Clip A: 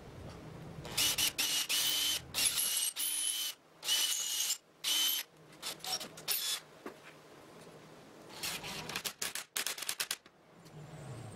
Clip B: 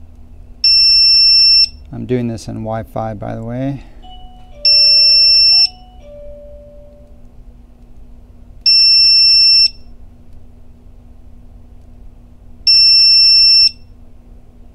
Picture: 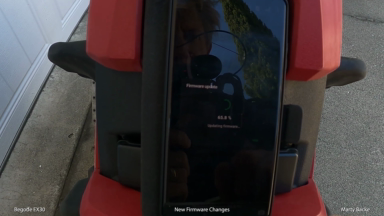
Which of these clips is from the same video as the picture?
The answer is B